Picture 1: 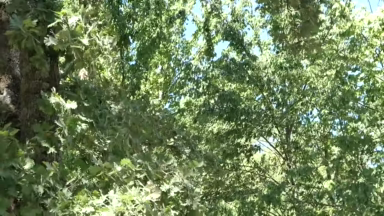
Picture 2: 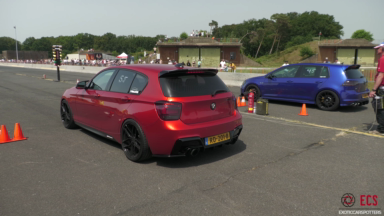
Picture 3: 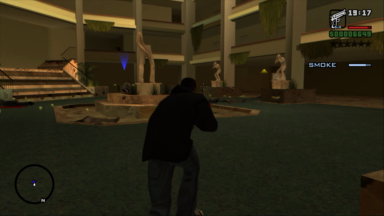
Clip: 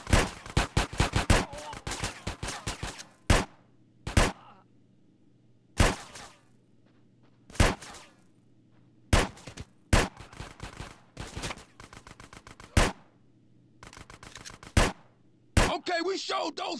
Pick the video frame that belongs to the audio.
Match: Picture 3